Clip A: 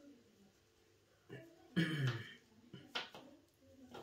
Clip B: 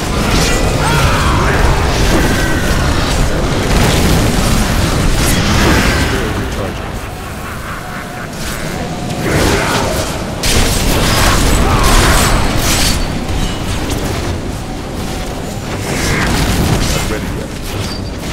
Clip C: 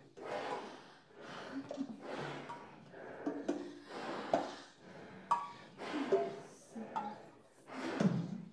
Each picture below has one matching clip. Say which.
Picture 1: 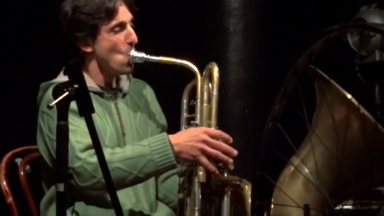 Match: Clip C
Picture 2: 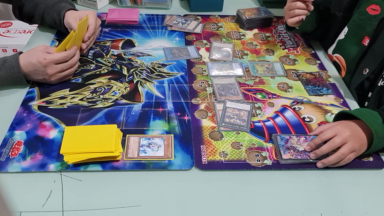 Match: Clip A